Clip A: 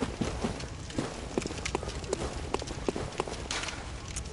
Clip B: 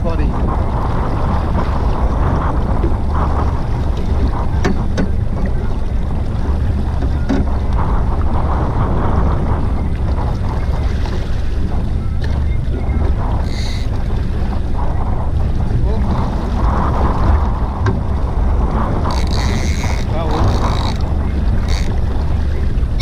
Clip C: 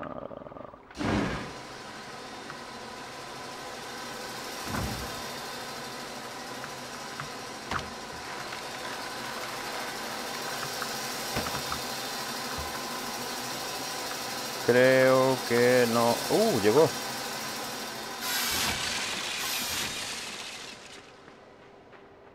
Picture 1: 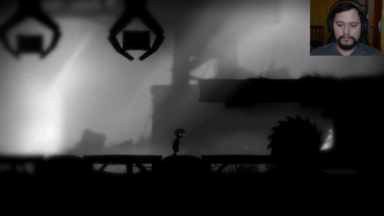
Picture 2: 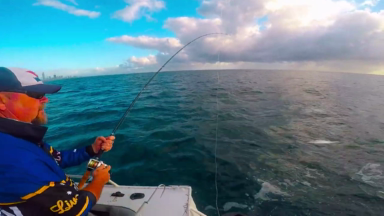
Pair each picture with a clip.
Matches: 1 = C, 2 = B